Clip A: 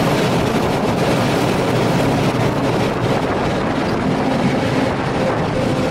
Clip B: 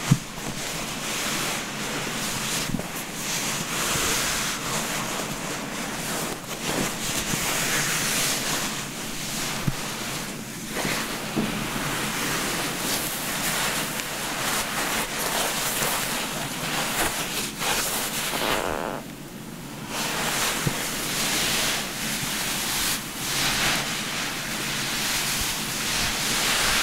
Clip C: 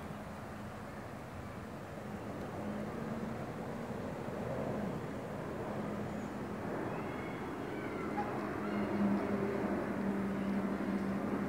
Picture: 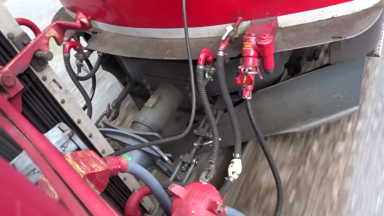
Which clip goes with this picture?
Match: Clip A